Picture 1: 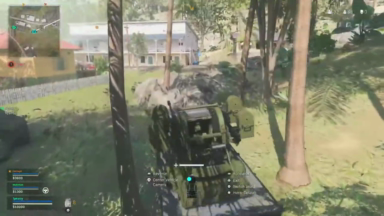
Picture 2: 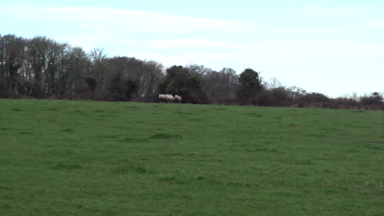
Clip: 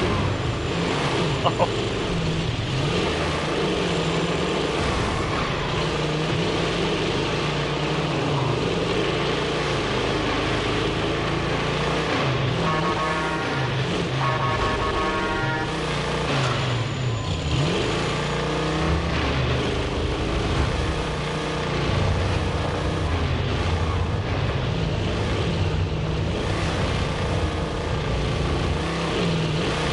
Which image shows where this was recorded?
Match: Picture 1